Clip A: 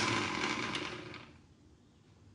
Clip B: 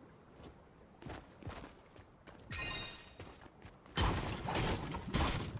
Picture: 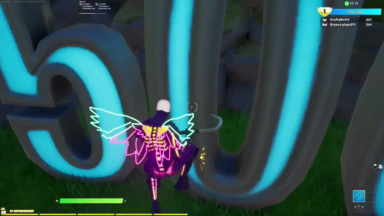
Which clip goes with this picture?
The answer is B